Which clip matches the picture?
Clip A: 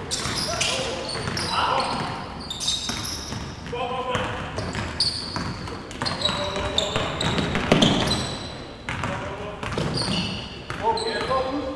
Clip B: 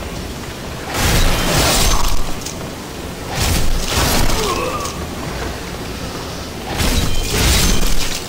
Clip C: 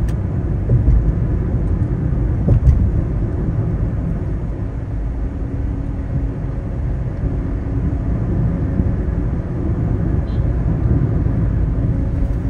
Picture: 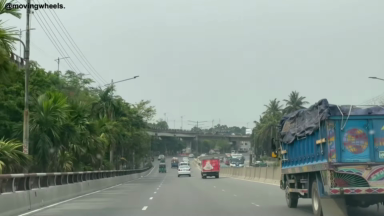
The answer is C